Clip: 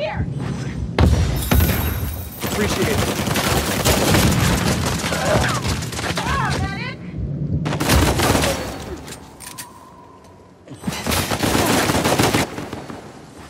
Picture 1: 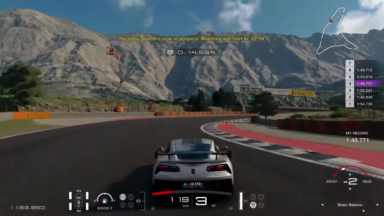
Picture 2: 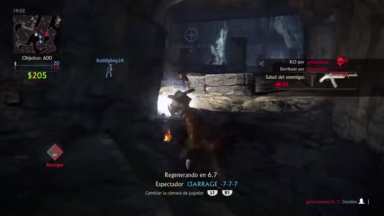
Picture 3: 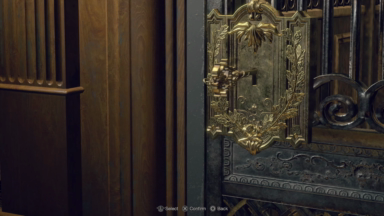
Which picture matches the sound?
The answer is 2